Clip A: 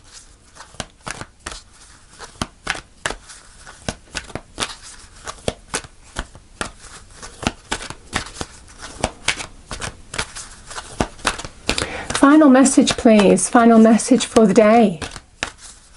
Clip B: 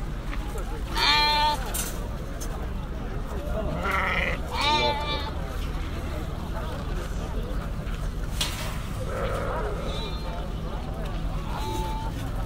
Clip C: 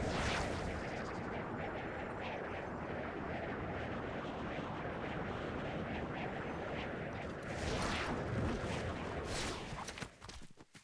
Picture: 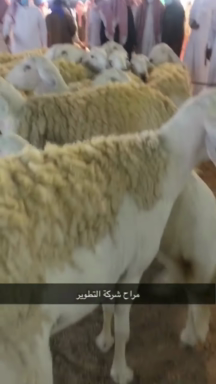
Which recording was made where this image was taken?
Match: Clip B